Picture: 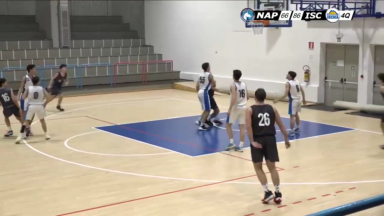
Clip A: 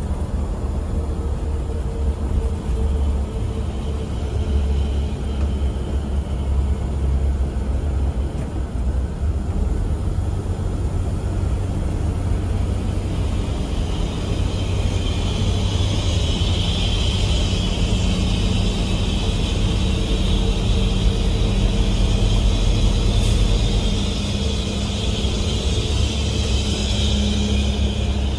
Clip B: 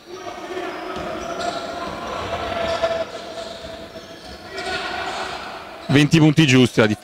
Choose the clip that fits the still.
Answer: B